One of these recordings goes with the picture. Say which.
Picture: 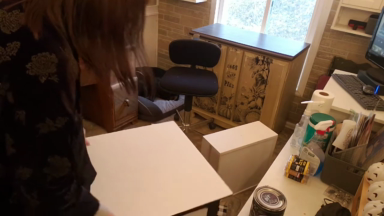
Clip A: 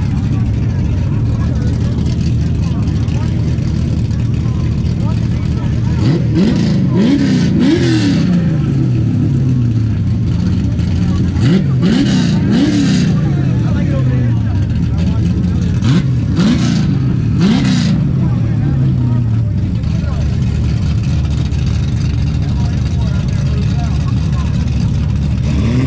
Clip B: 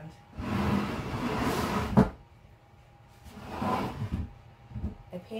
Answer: B